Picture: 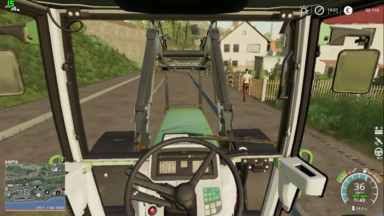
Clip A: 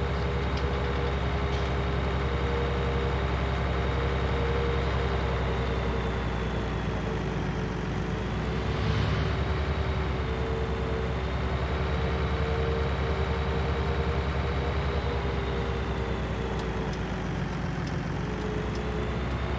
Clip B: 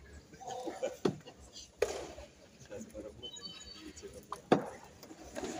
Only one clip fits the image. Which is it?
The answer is A